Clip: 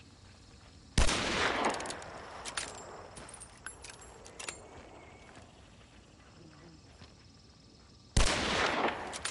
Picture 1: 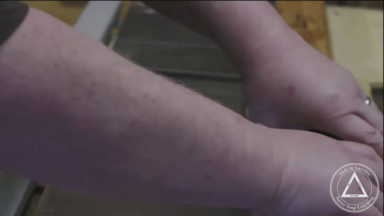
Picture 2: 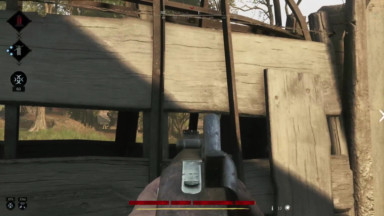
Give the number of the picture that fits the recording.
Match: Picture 2